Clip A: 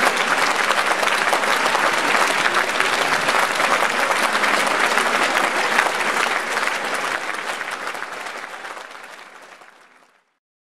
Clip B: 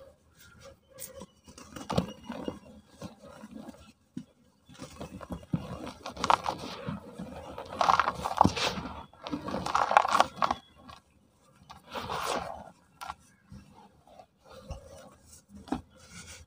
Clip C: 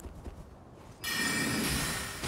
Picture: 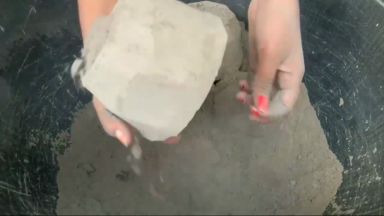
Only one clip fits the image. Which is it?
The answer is B